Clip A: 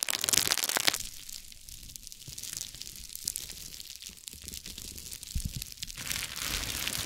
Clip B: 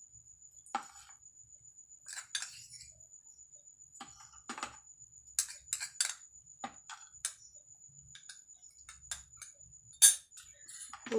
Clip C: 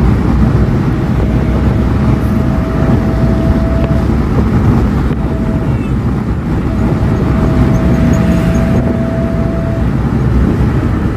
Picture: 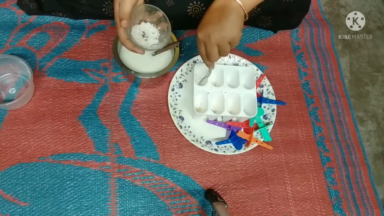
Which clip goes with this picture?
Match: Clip B